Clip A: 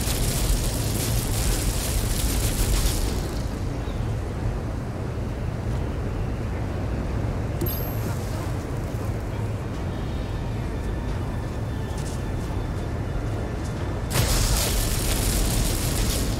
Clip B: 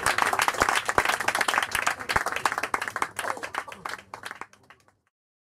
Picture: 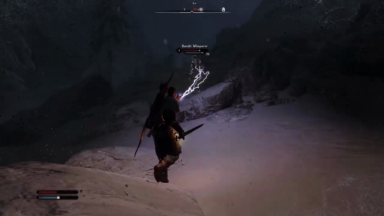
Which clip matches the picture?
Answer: A